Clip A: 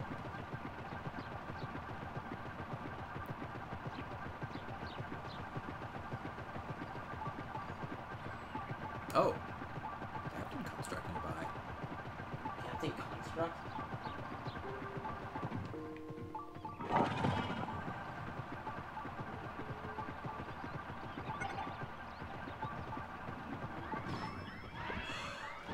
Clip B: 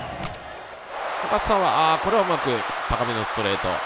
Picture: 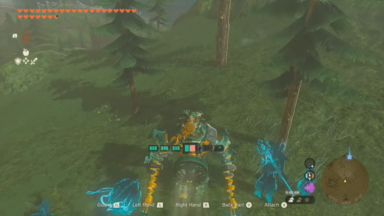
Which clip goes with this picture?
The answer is A